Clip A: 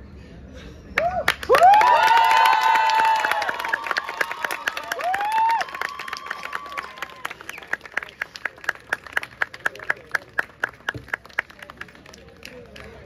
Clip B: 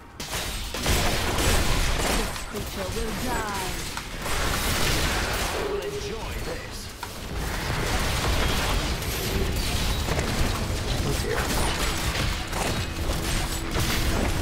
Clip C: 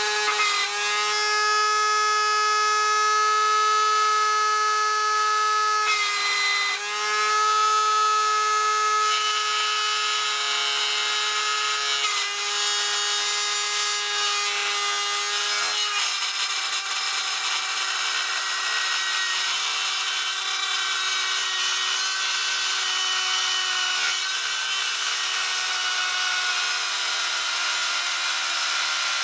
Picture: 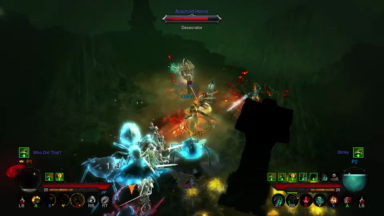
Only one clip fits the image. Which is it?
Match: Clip B